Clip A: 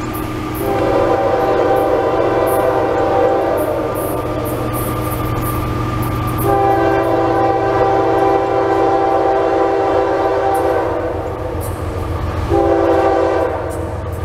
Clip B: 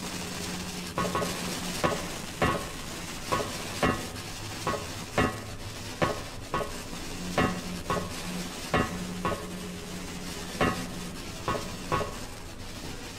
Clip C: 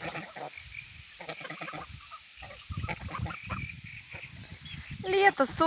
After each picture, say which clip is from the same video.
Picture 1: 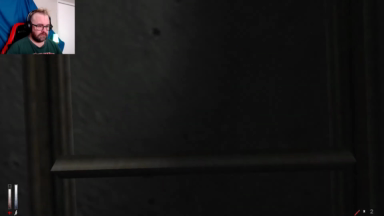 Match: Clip B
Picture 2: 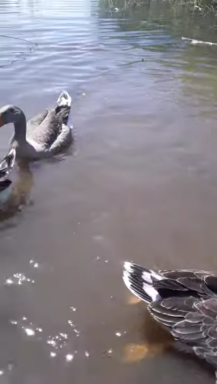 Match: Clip C